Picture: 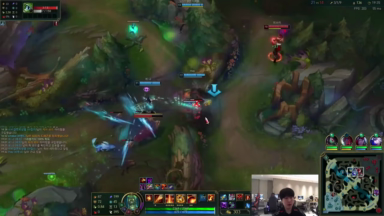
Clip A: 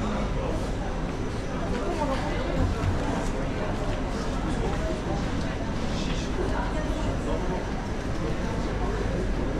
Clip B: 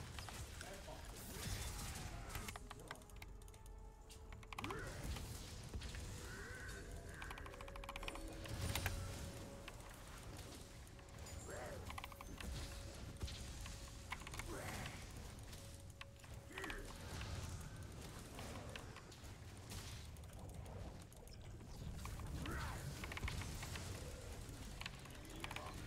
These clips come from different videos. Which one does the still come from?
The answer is B